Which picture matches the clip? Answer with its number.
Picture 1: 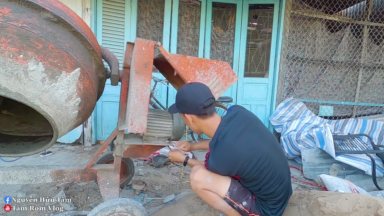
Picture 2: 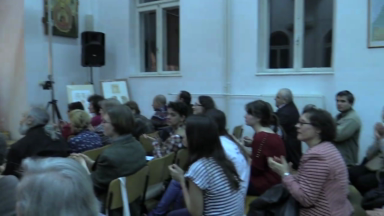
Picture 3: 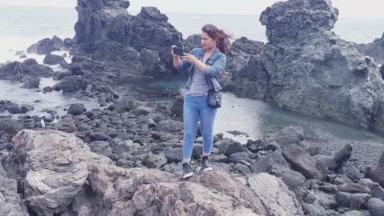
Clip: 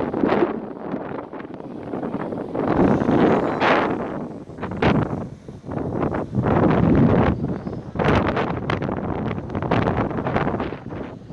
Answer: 3